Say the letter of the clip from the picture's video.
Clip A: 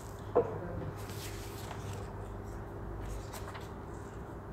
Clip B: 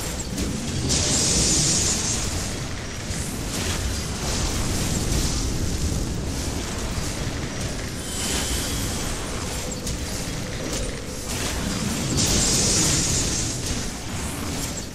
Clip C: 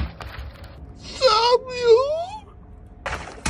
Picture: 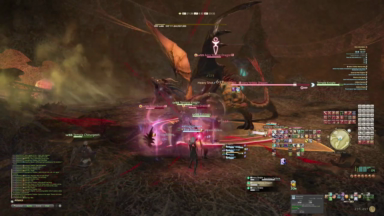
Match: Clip B